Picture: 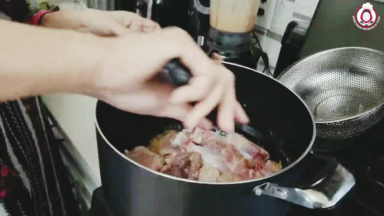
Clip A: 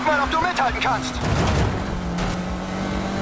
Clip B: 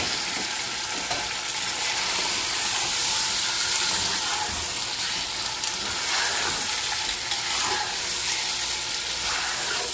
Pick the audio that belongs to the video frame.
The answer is B